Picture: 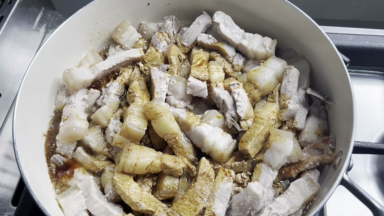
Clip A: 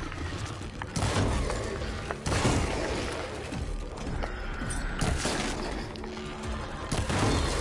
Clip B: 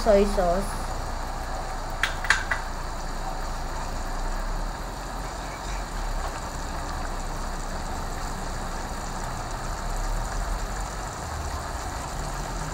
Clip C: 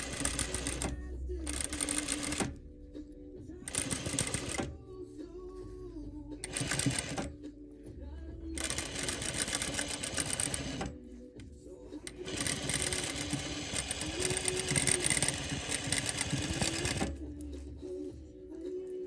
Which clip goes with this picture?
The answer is B